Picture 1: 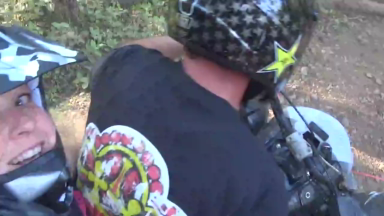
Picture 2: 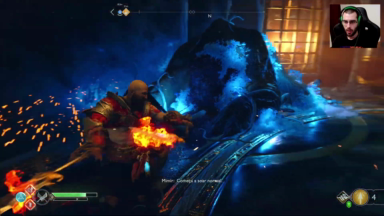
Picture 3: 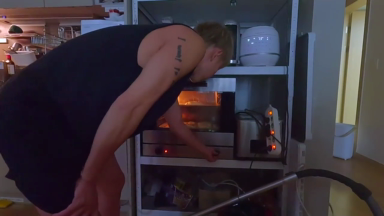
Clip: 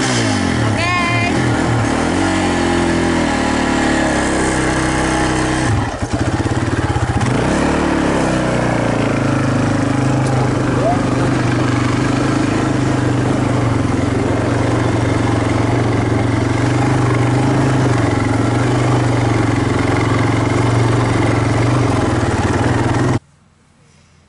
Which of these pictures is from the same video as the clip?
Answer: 1